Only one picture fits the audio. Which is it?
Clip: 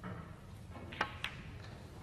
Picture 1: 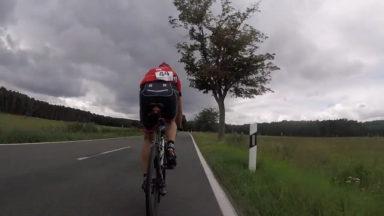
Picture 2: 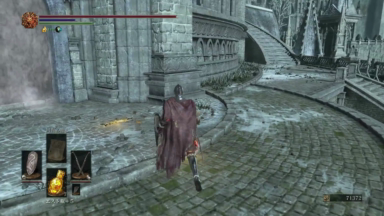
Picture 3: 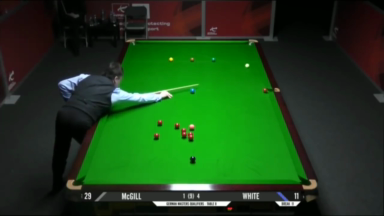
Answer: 3